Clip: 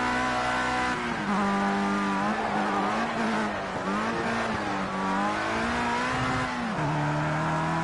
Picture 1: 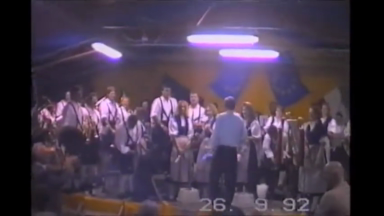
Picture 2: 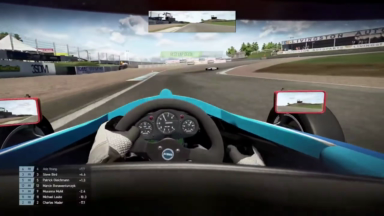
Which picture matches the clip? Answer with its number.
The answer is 2